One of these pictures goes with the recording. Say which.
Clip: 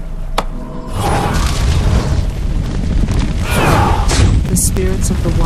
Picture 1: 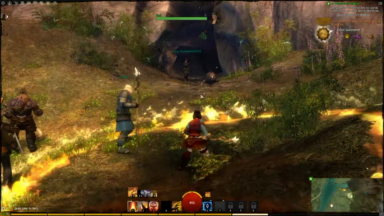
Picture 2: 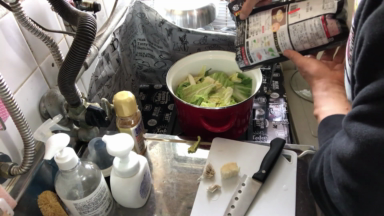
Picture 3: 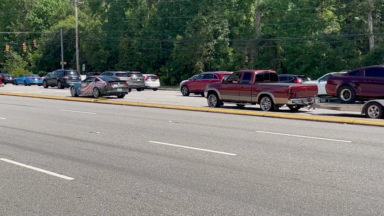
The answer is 1